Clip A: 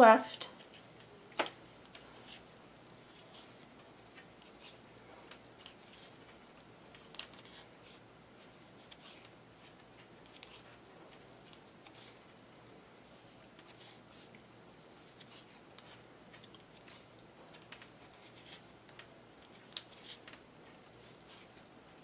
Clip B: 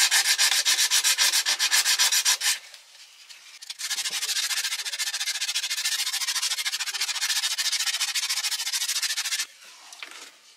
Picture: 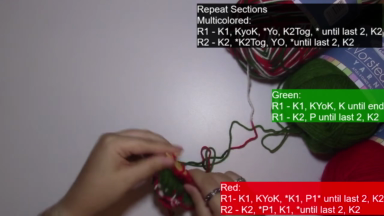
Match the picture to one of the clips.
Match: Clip A